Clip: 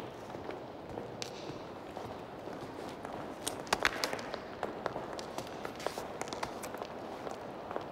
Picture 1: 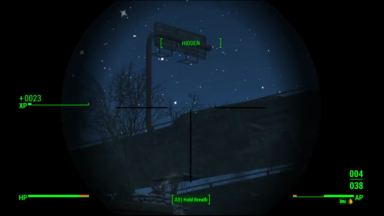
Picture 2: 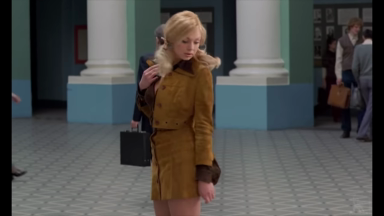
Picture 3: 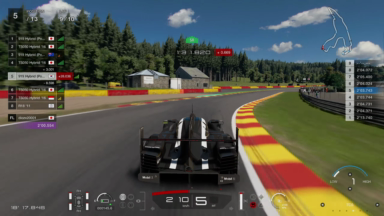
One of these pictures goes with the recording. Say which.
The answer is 2